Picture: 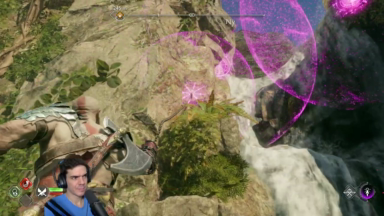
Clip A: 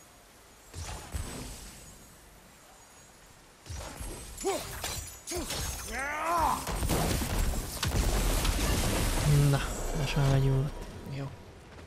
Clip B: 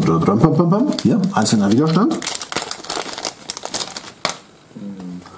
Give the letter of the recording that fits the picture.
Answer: A